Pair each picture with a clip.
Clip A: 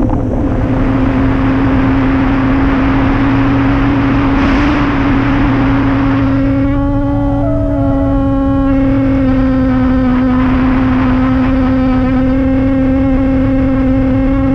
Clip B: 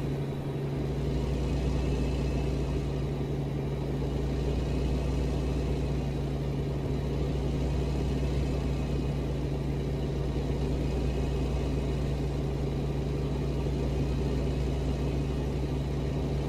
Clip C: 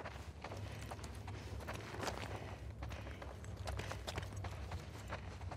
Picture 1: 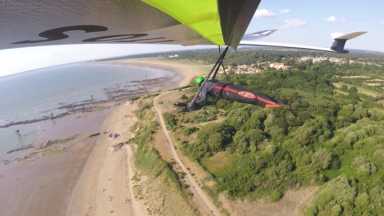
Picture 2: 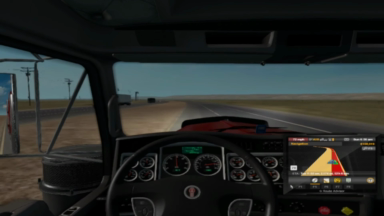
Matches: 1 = A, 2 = B